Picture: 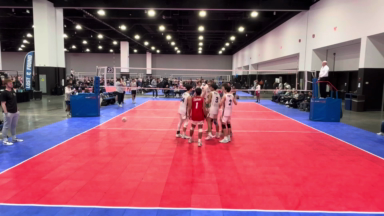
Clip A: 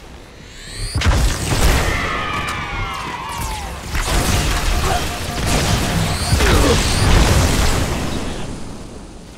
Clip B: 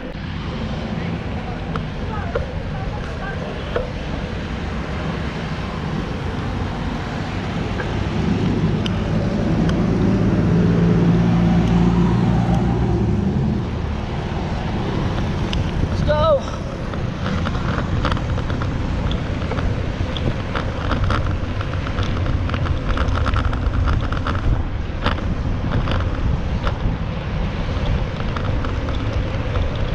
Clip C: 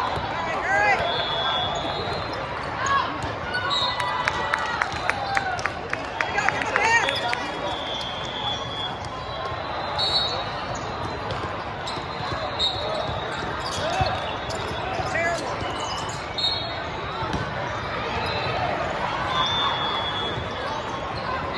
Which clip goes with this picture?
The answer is C